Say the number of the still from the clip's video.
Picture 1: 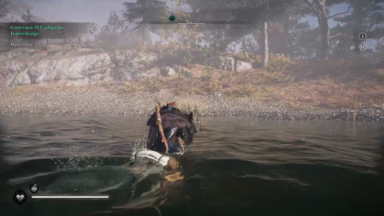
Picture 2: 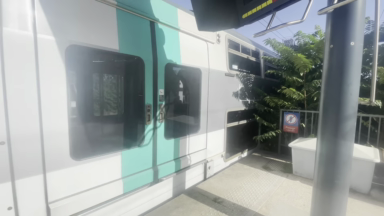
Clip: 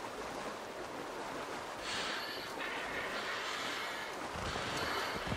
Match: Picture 1